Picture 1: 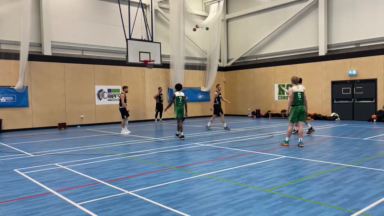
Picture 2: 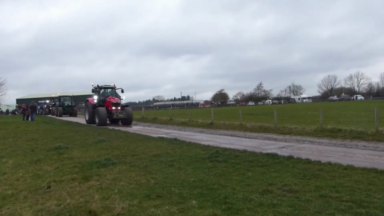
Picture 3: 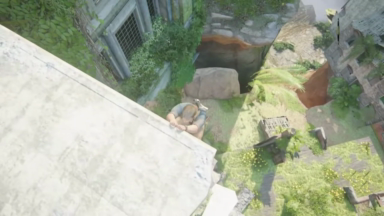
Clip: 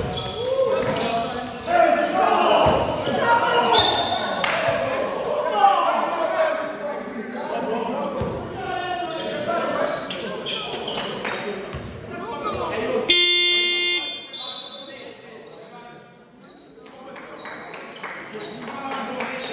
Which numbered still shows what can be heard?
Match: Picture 1